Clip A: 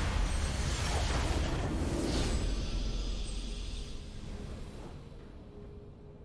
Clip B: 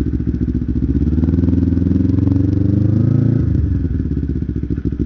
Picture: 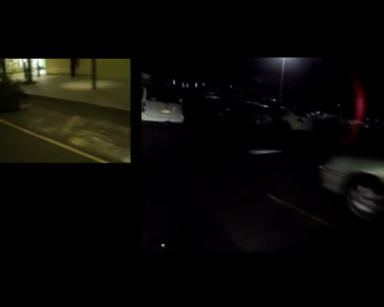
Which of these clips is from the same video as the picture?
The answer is B